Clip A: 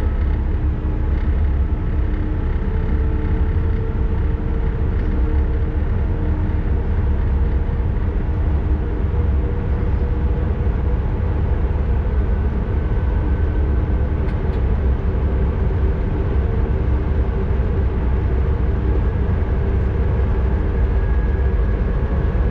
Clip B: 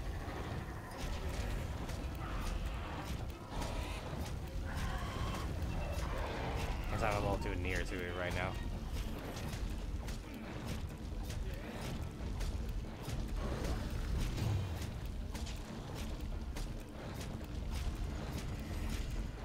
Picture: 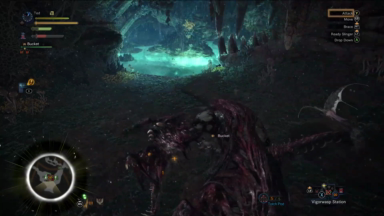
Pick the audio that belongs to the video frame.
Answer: B